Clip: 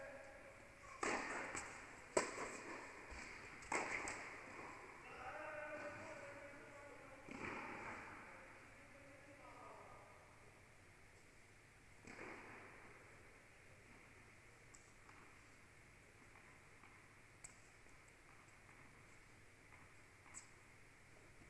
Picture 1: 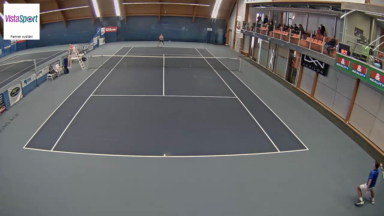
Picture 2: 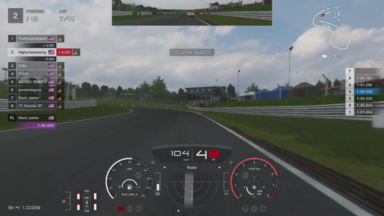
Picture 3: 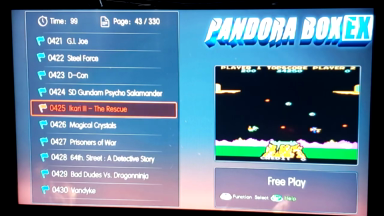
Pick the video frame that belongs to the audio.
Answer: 1